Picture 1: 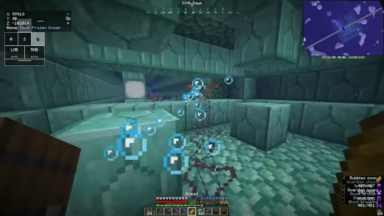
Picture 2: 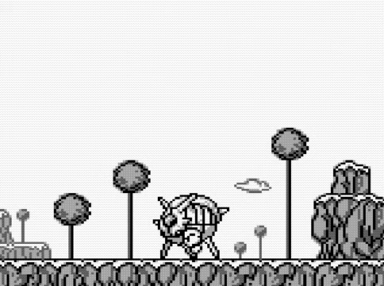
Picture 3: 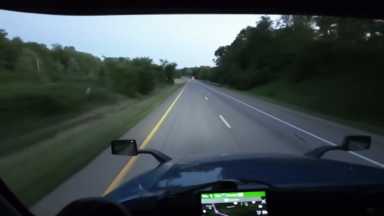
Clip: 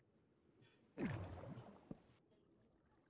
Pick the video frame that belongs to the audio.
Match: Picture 1